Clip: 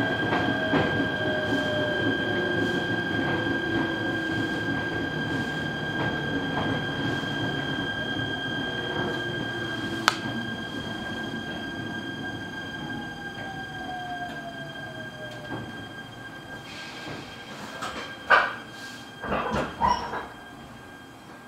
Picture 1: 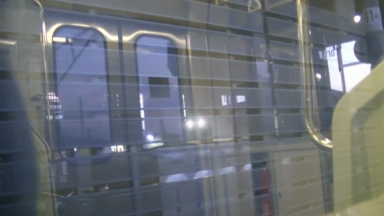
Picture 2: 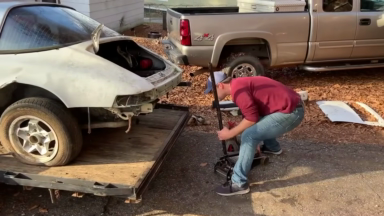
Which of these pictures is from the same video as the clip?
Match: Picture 1